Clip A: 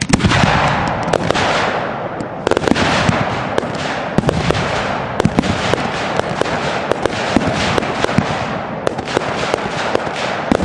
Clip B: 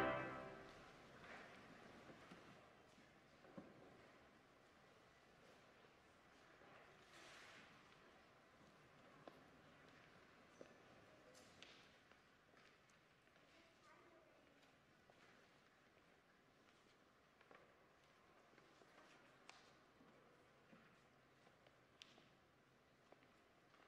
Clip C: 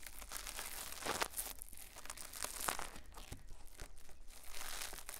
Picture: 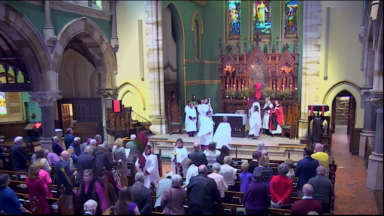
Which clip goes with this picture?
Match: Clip B